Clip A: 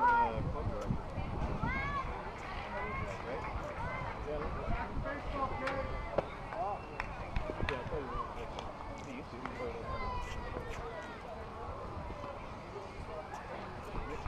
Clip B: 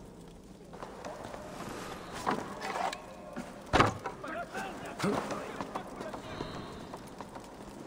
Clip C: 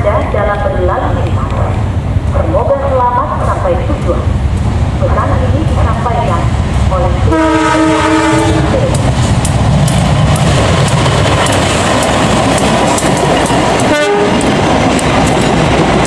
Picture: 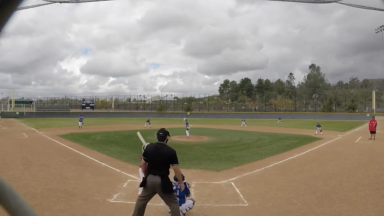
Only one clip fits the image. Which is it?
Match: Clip A